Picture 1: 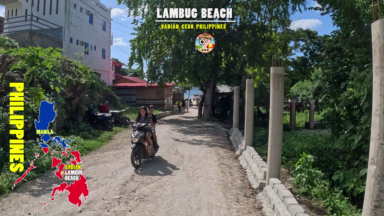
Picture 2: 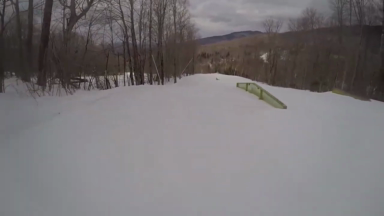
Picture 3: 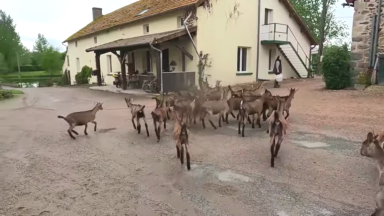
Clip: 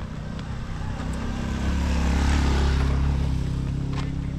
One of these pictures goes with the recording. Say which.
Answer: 1